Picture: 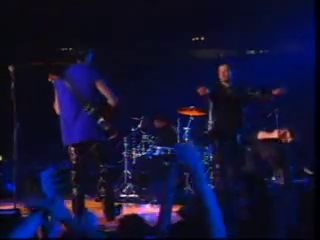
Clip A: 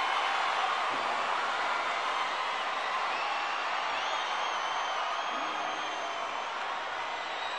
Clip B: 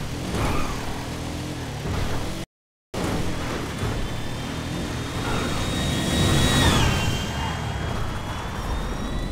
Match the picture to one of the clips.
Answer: A